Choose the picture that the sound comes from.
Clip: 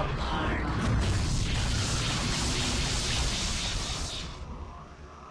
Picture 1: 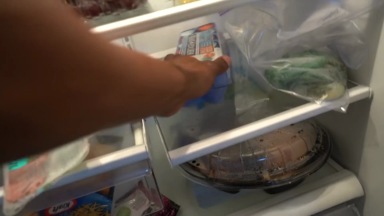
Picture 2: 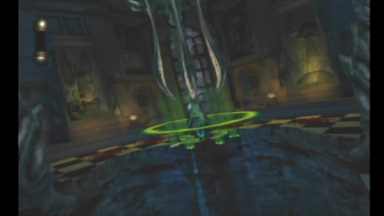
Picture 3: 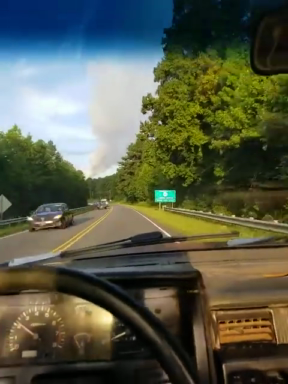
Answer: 2